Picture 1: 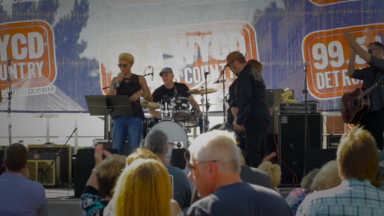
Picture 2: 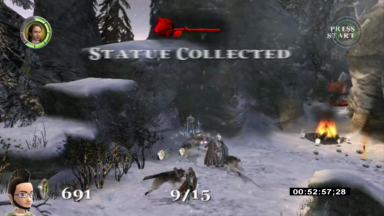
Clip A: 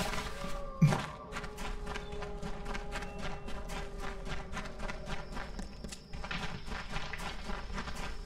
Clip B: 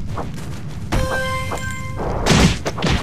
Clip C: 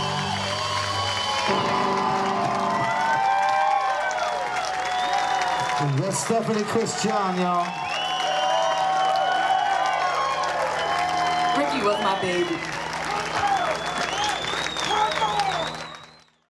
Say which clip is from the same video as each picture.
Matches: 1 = C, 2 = B